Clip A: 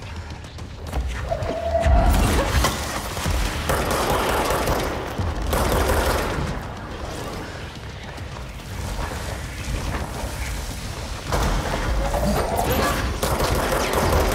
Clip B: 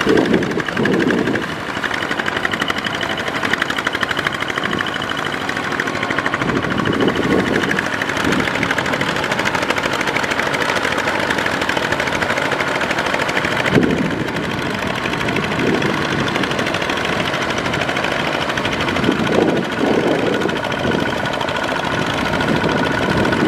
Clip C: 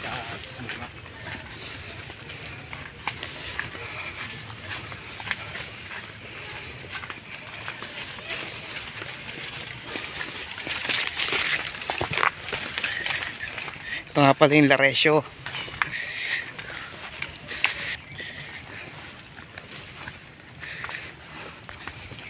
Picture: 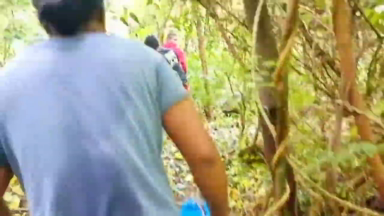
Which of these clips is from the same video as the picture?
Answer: C